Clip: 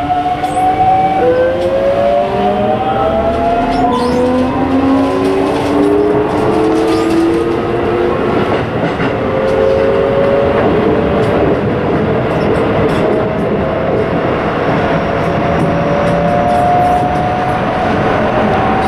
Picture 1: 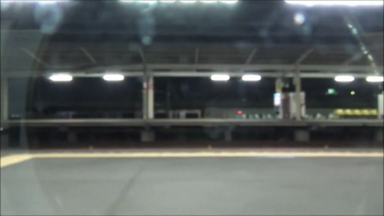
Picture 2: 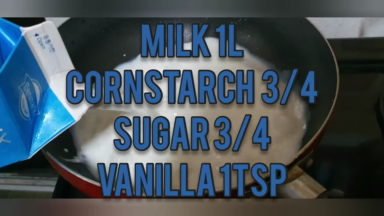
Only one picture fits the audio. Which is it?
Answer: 1